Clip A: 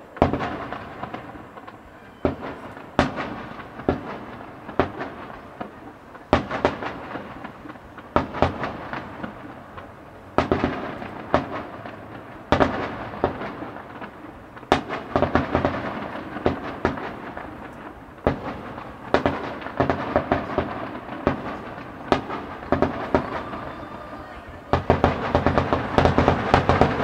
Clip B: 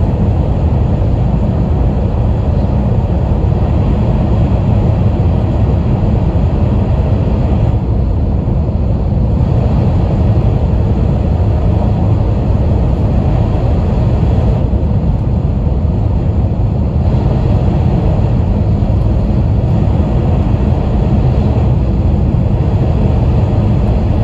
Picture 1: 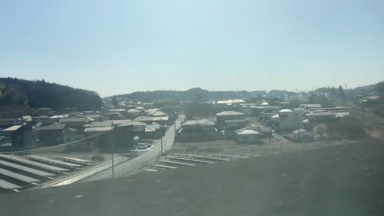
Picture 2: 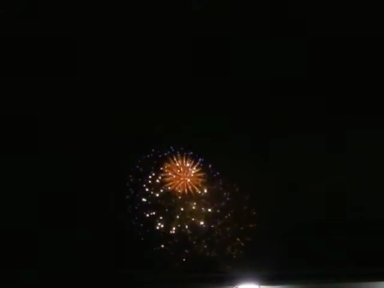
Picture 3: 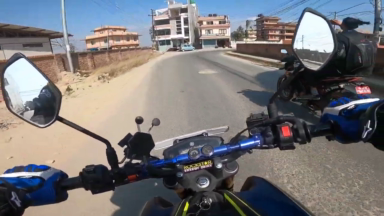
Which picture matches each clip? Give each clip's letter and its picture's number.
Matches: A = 2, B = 1